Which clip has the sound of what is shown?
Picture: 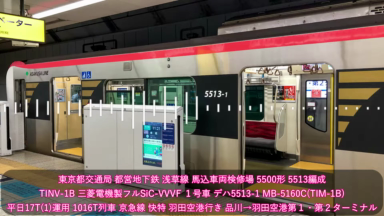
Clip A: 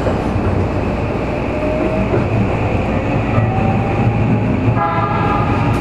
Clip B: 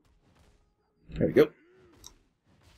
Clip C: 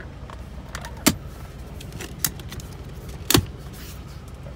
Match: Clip A